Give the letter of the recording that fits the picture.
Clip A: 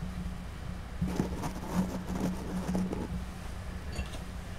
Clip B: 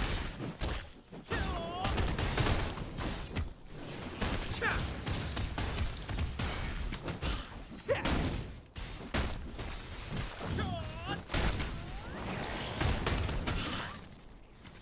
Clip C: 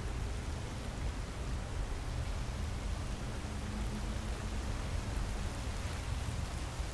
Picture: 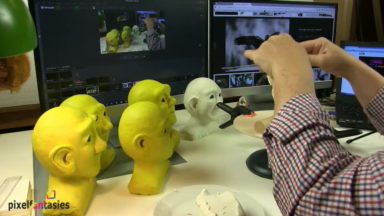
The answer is A